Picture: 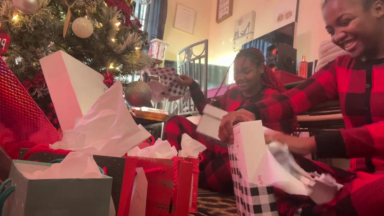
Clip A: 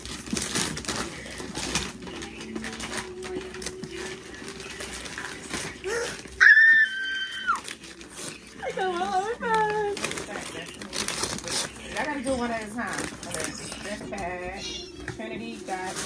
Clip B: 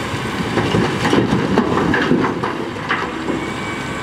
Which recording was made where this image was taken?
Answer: A